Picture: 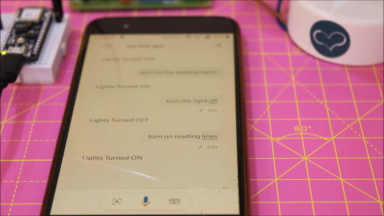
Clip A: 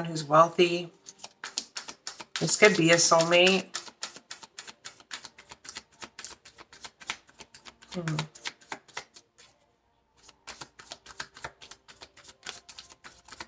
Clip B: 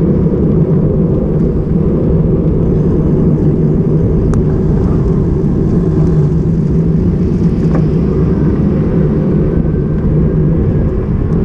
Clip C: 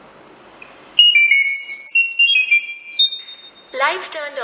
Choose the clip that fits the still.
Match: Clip C